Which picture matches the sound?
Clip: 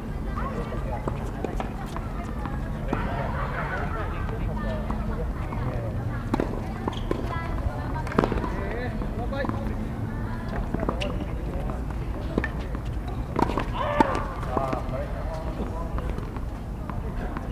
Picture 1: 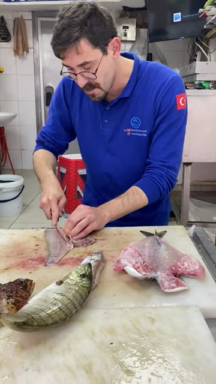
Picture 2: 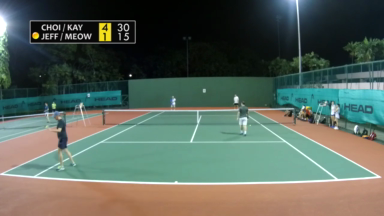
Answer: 2